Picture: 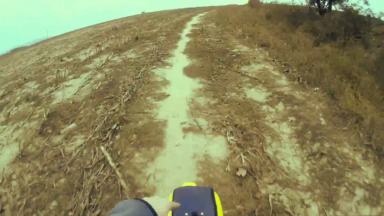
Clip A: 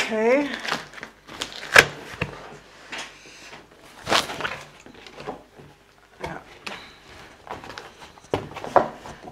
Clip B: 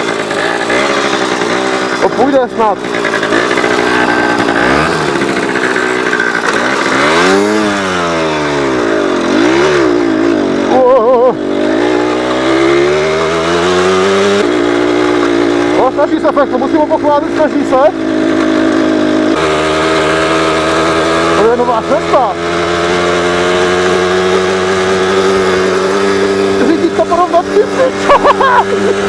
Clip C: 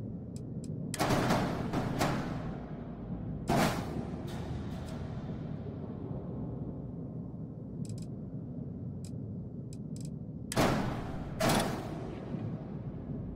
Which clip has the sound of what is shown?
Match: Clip B